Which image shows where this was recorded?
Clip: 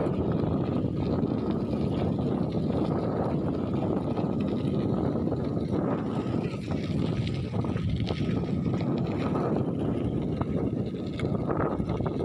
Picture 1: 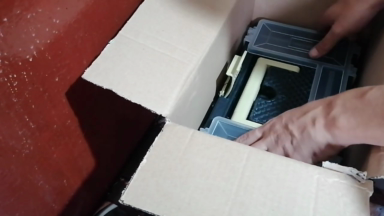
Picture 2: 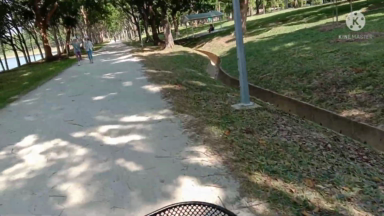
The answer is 2